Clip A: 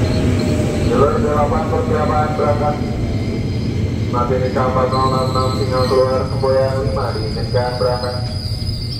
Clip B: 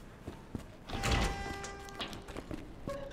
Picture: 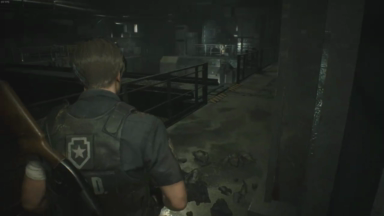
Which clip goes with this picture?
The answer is B